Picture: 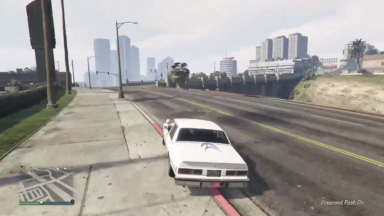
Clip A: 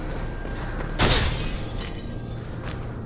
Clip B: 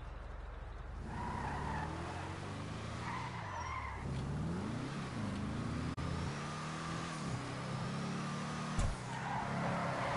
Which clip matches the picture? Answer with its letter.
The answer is B